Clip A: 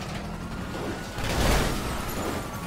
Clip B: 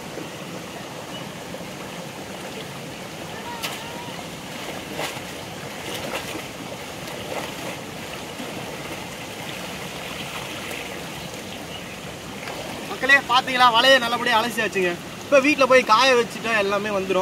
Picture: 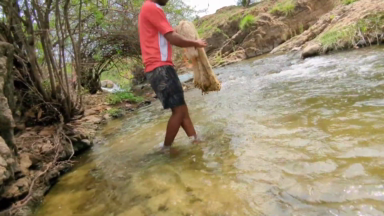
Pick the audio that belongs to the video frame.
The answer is B